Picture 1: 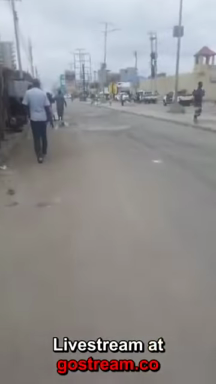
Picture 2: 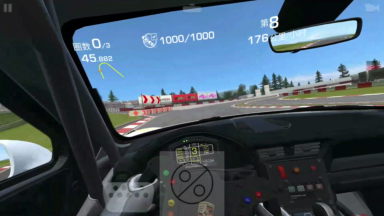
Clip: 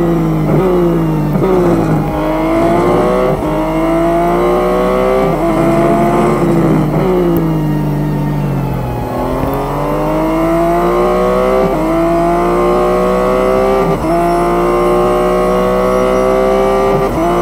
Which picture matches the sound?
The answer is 2